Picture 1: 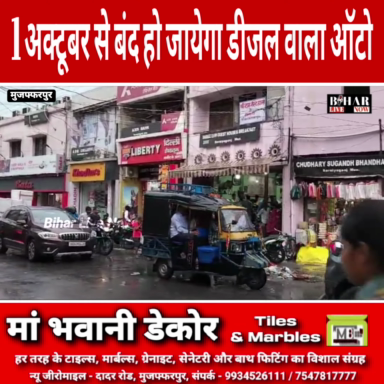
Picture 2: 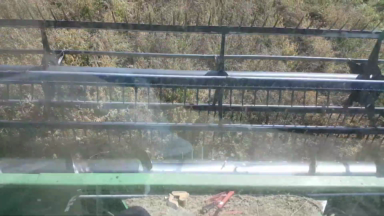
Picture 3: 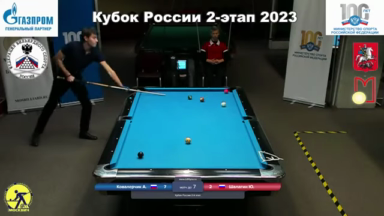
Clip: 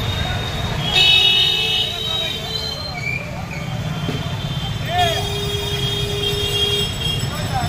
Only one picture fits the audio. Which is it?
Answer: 1